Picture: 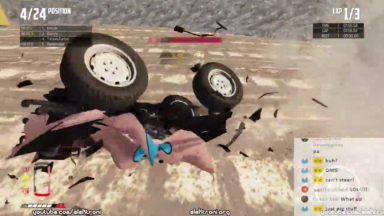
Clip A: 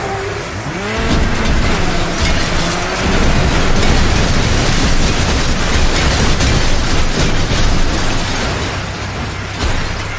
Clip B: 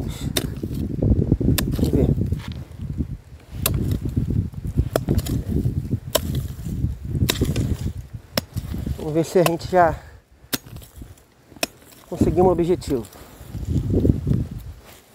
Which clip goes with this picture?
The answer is A